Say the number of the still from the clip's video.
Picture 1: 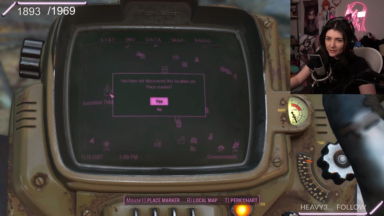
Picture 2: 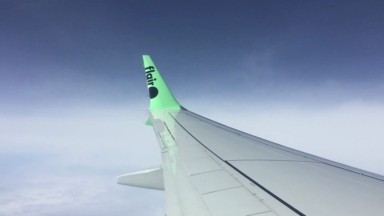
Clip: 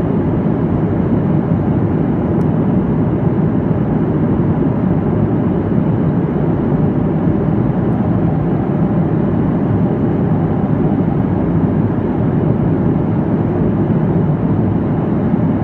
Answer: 2